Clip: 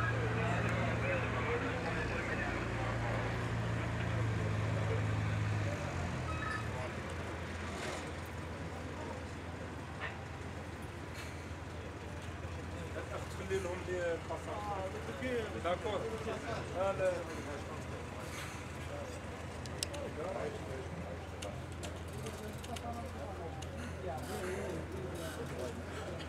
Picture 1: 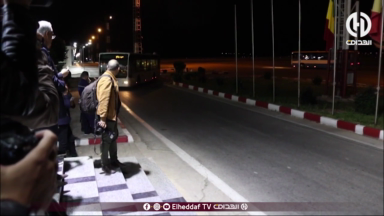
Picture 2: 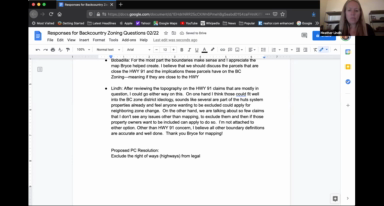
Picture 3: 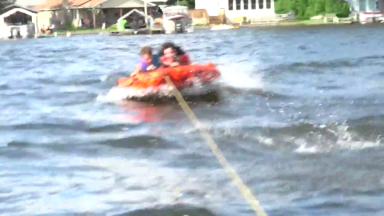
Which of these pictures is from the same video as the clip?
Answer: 1